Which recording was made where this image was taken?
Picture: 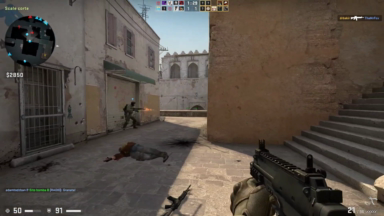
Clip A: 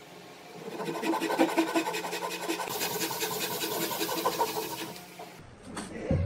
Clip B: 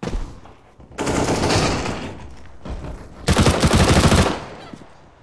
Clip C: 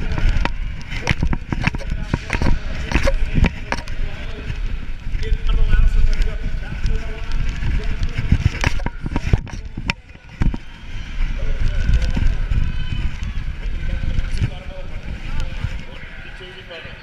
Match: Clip B